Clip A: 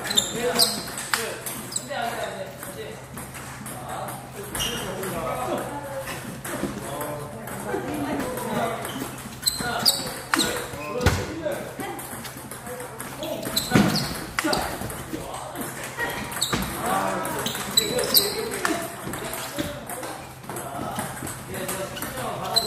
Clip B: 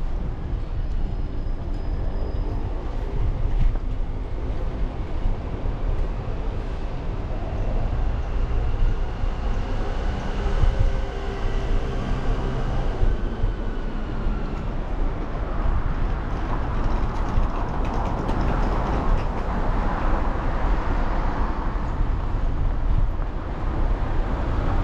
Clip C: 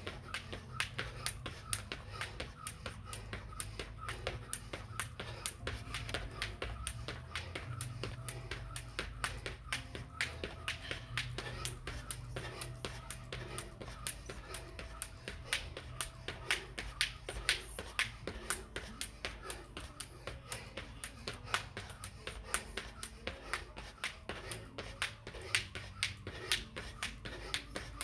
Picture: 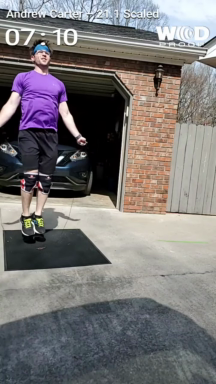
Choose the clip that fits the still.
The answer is C